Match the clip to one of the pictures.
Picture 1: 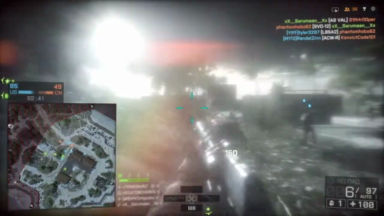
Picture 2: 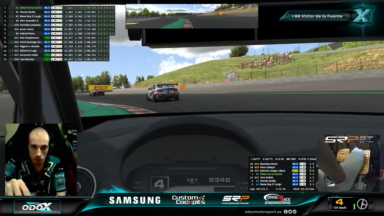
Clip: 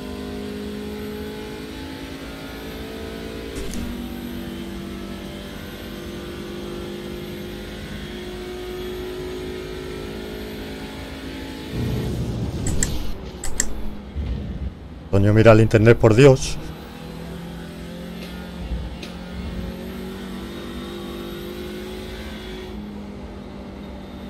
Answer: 2